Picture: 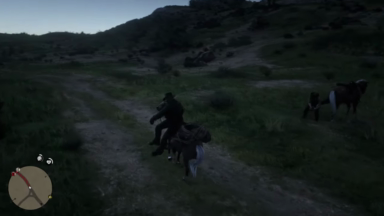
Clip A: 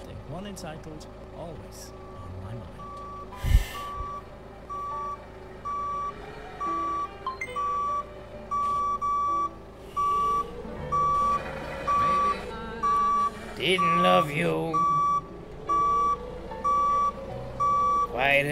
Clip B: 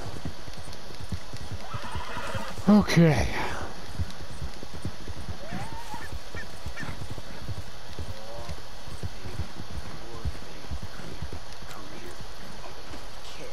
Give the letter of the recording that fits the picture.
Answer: B